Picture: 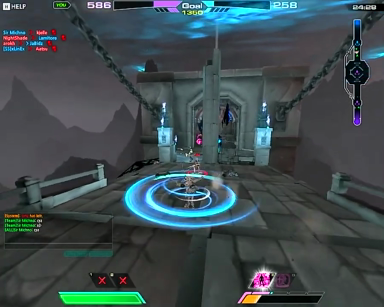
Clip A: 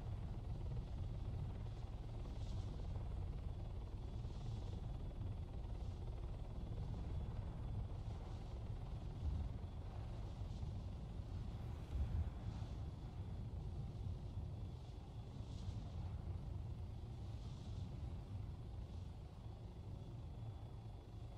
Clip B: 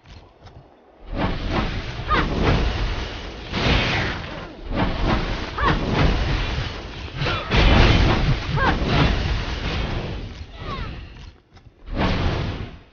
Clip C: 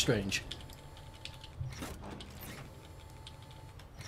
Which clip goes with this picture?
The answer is B